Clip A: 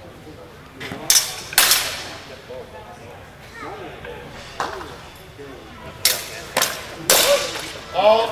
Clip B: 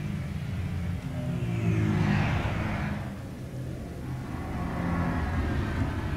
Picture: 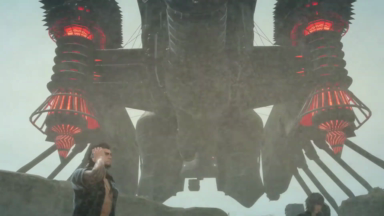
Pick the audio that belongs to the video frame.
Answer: B